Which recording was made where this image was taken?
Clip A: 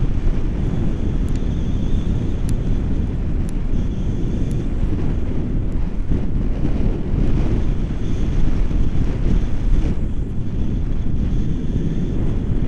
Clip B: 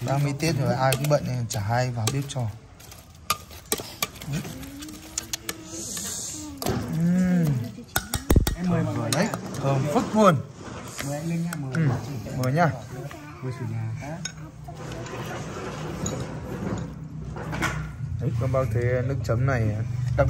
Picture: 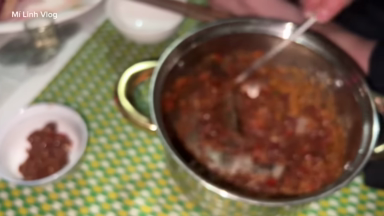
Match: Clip B